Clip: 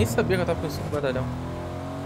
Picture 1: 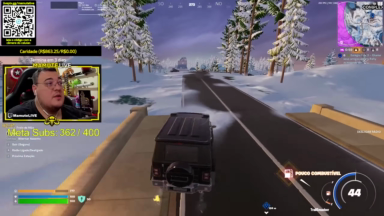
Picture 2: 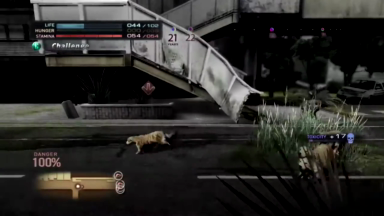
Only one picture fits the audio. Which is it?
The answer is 1